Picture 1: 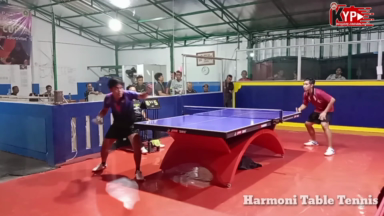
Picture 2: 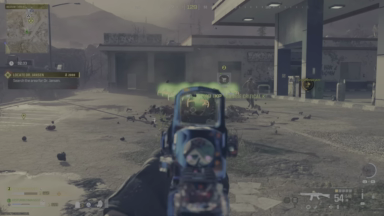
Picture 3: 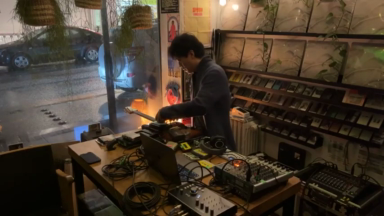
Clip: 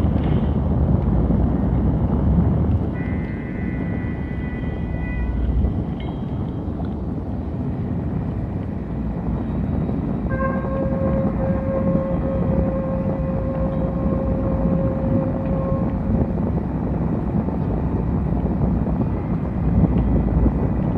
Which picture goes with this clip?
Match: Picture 3